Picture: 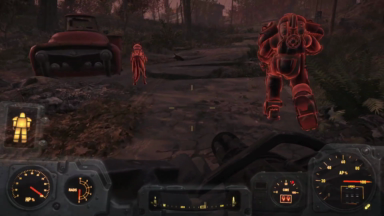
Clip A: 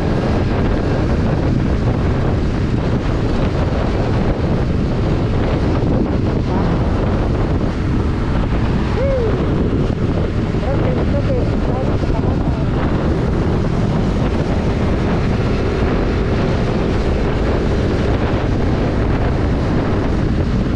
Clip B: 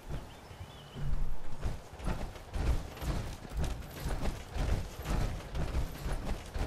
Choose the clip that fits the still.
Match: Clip B